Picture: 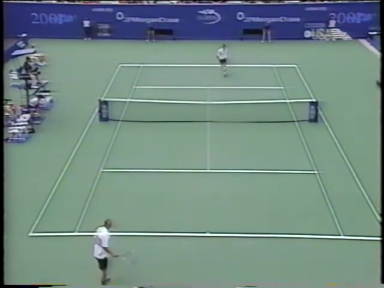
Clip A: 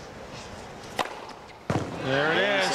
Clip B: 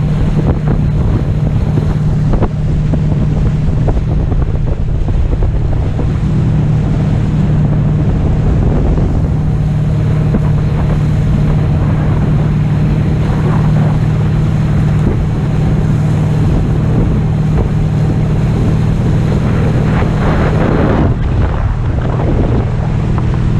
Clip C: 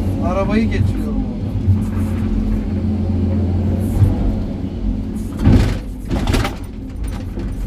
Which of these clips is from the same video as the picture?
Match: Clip A